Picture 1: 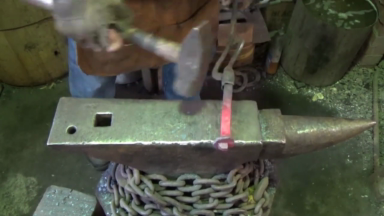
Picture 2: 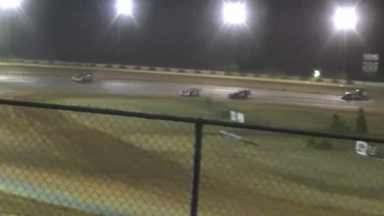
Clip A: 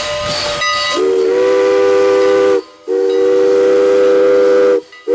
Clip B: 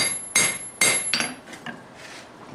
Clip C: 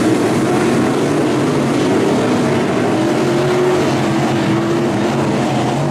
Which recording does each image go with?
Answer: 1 B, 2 C